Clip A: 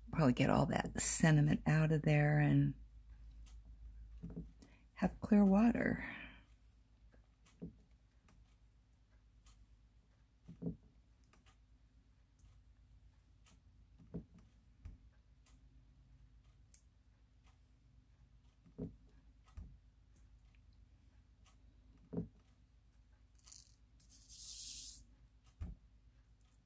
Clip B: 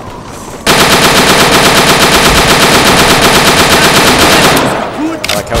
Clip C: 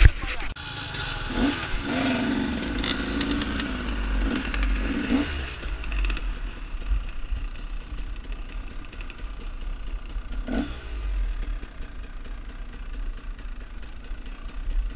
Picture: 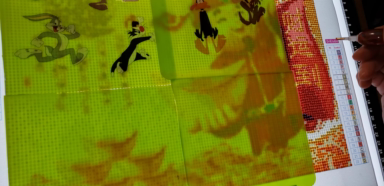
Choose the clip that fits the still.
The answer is A